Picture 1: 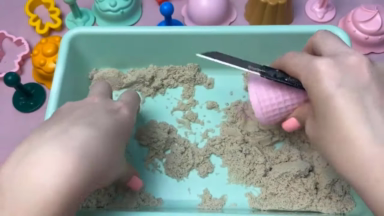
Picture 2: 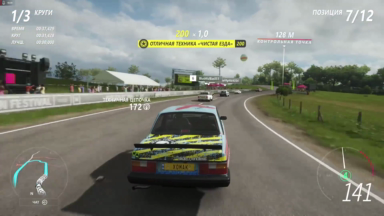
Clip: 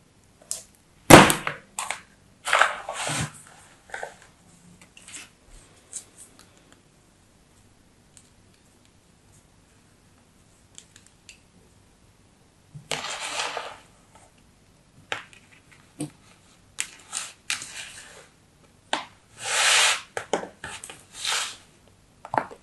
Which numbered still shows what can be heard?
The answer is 1